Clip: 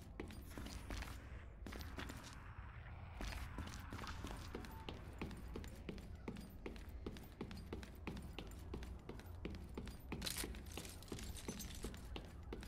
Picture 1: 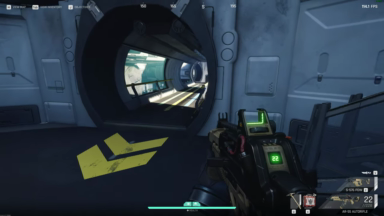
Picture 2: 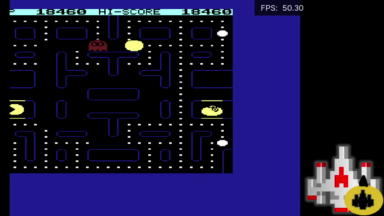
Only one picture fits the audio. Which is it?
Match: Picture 1